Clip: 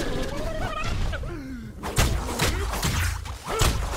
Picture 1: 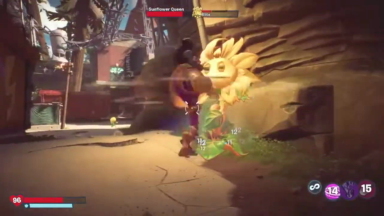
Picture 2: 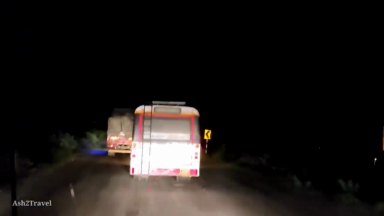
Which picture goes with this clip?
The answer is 1